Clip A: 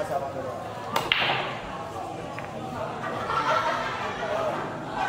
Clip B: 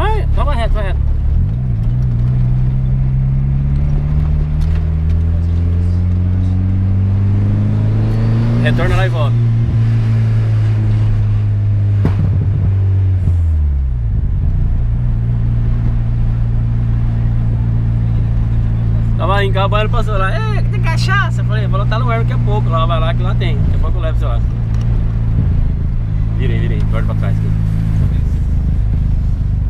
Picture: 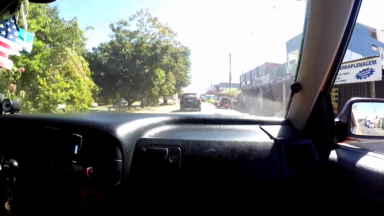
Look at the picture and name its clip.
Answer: B